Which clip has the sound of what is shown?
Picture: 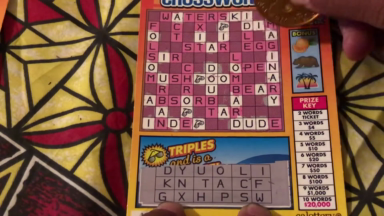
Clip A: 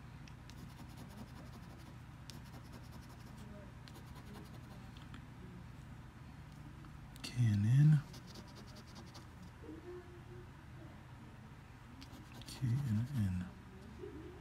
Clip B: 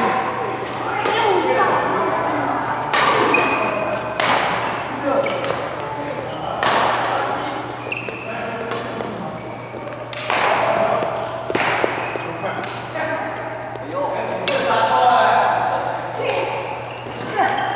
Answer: A